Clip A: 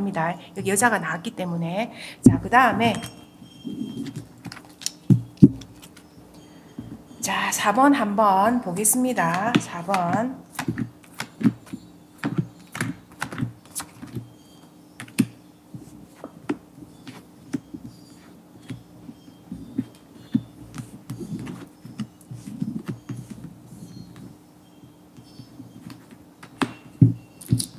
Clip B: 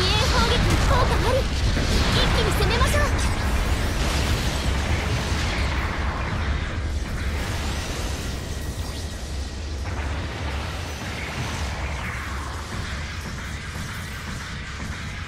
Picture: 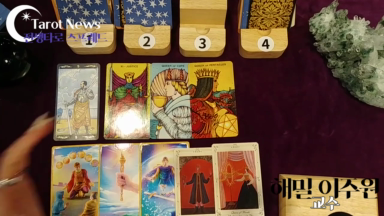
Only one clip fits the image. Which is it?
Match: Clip A